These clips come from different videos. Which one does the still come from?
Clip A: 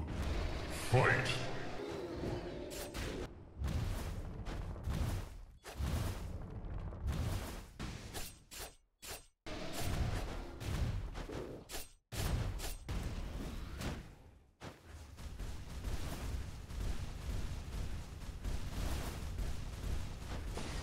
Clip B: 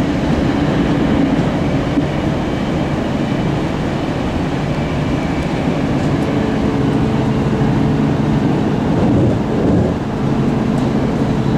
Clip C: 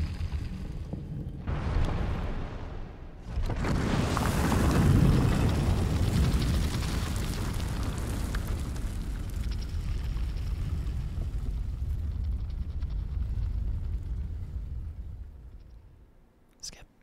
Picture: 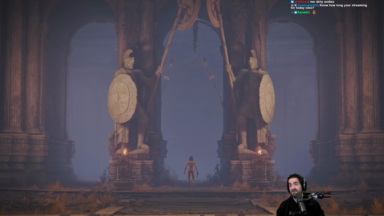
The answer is C